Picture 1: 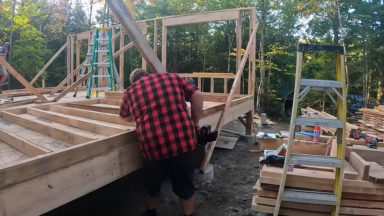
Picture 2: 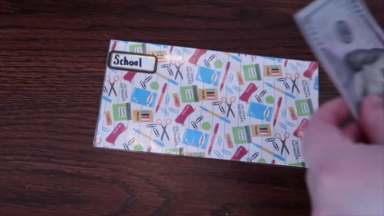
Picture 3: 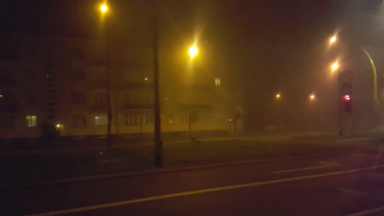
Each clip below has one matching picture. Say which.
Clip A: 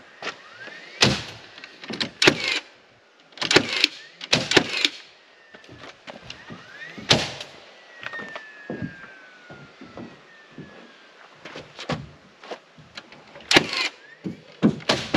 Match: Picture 1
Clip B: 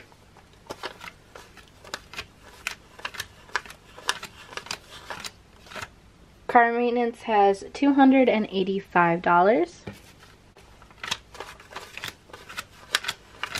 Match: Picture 2